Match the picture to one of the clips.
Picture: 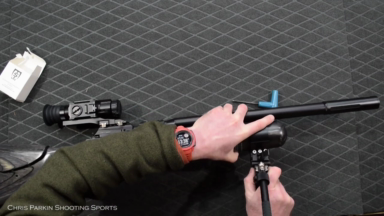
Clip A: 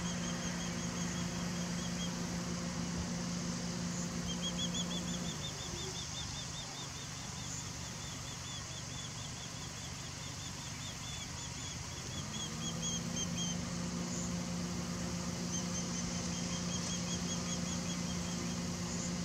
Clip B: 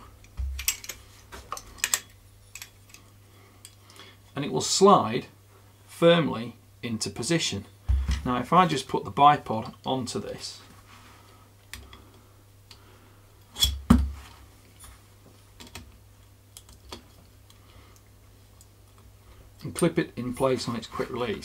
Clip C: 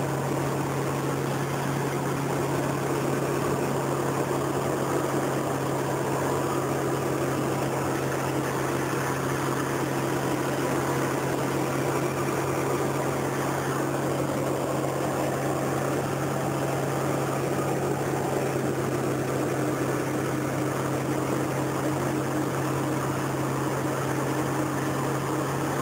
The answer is B